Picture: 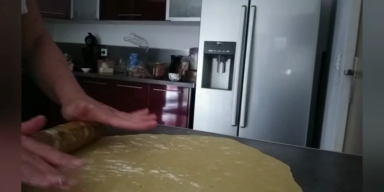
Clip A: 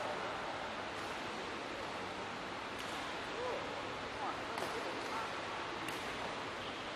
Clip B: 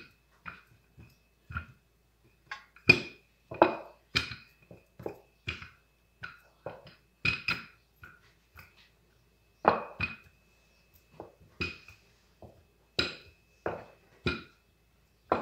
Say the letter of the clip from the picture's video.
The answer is B